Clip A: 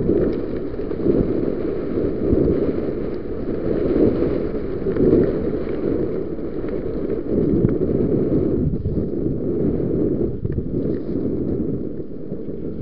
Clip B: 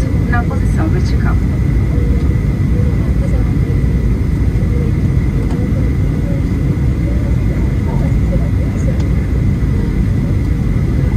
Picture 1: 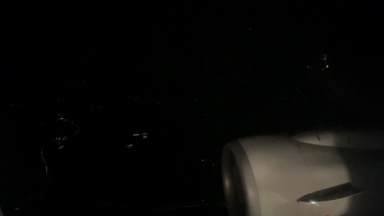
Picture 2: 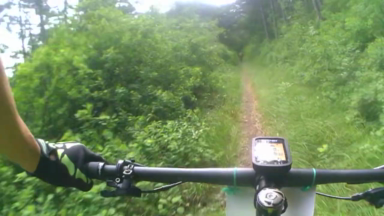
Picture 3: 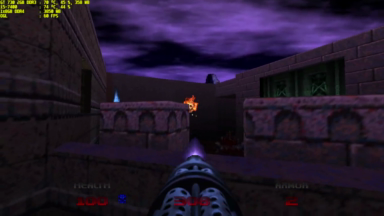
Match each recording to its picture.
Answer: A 2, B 1